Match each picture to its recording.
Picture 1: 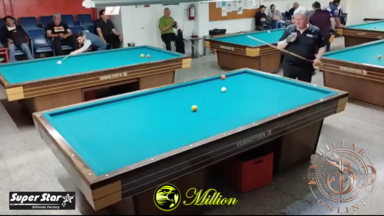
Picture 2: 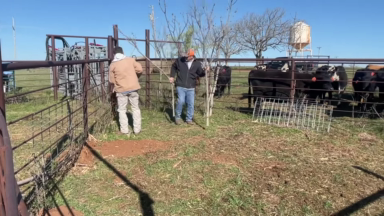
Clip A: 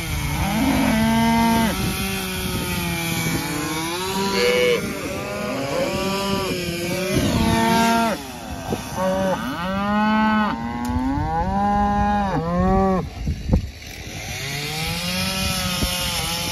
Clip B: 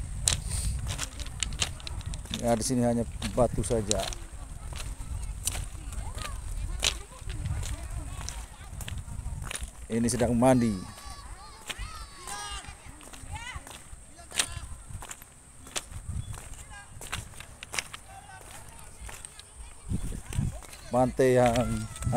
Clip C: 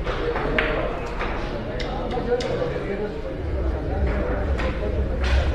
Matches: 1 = C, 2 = A